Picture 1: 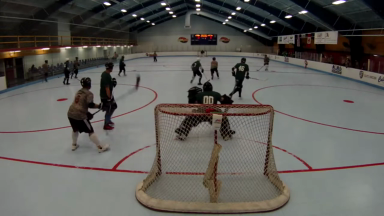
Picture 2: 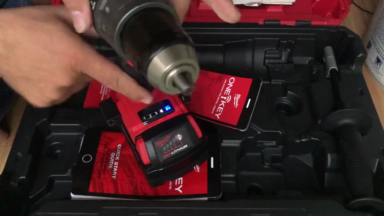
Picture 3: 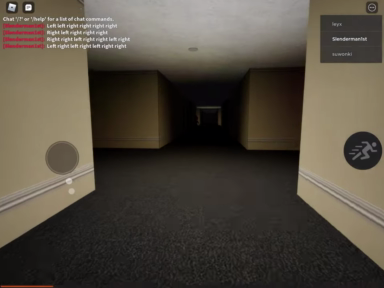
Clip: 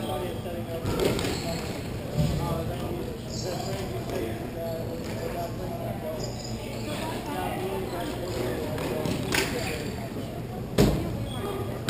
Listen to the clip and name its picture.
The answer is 1